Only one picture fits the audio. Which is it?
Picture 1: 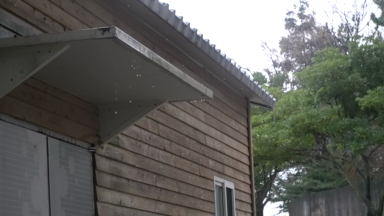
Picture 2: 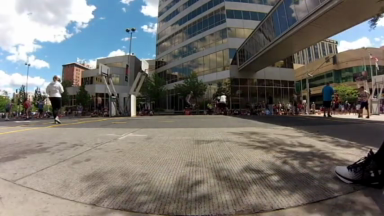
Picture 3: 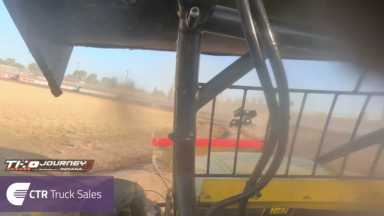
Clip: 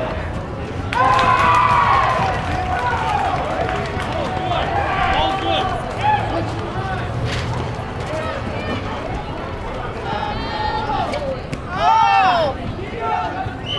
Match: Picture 2